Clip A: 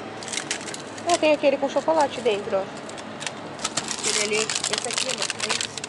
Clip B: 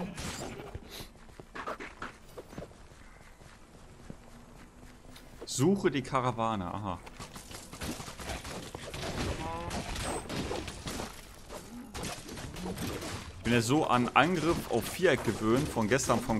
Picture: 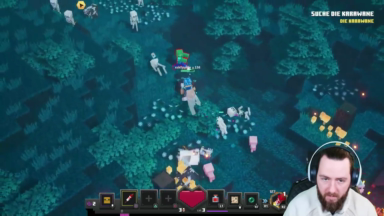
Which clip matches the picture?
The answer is B